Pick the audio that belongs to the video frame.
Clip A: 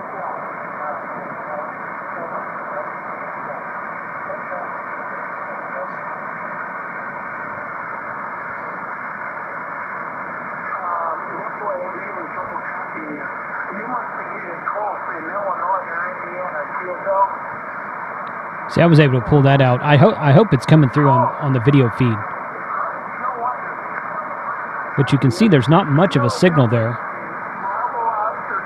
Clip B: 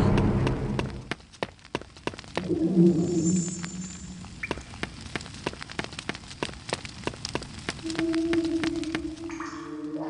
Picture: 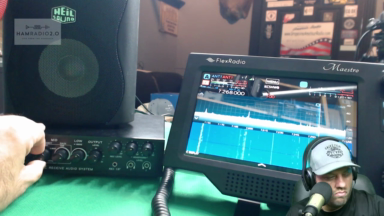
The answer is A